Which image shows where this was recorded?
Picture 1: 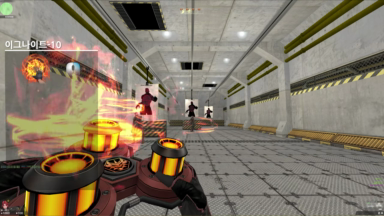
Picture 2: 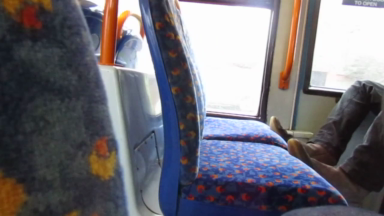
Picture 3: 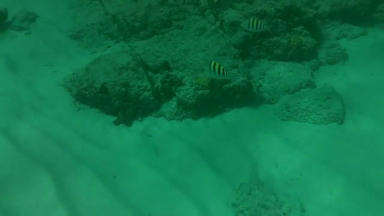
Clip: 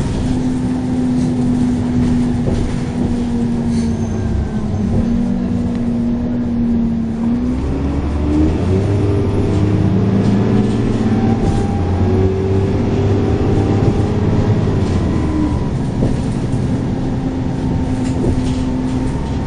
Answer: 2